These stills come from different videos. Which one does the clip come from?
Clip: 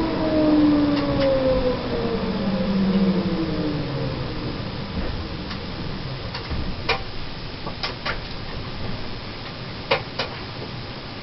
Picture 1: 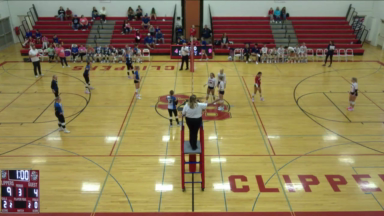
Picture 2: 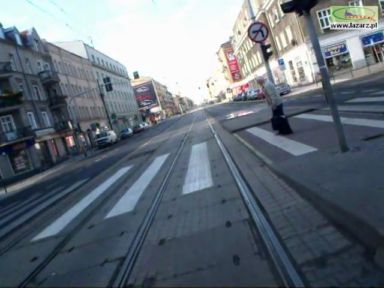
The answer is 2